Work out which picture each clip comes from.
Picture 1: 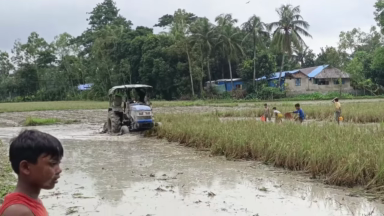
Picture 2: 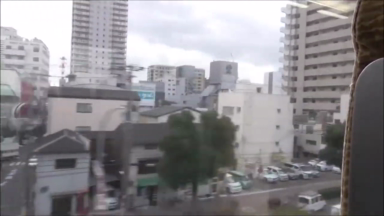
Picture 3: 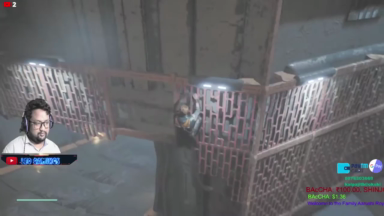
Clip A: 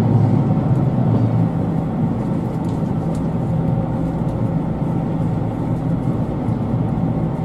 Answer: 2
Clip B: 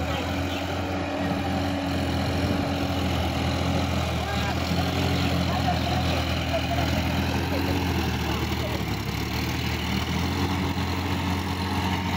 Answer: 1